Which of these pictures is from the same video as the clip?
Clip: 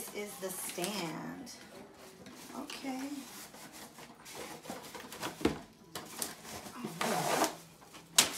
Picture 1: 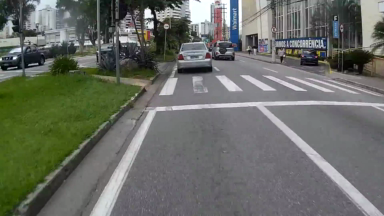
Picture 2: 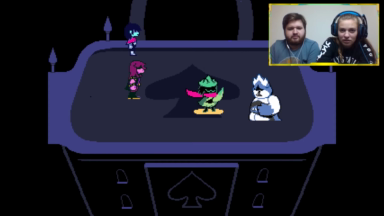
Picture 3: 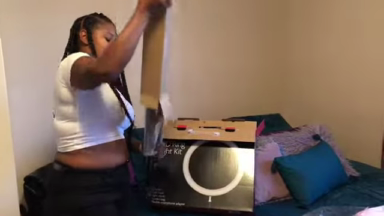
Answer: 3